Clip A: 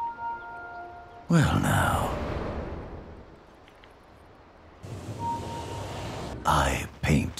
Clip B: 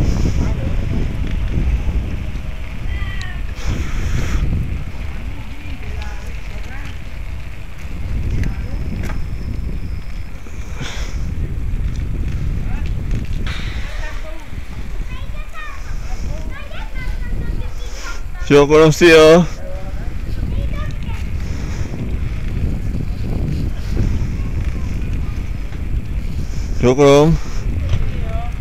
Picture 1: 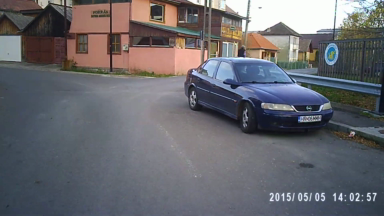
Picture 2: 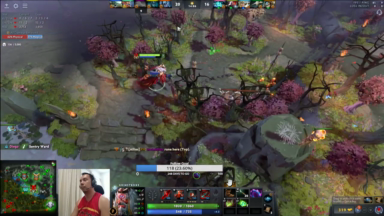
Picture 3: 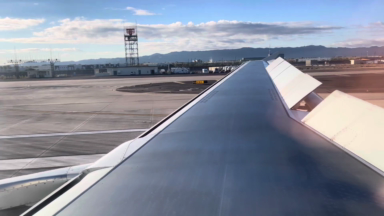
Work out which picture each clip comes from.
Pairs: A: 2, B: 1